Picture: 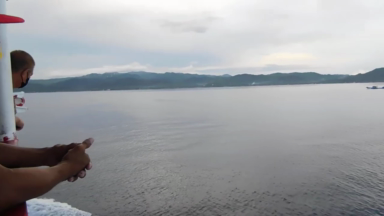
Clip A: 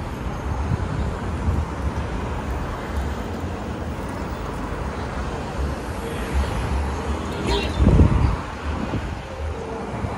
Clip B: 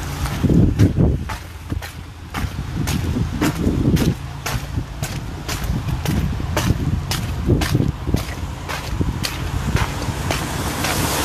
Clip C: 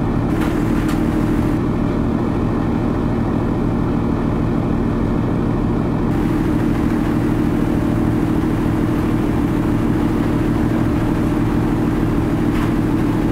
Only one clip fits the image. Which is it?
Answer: C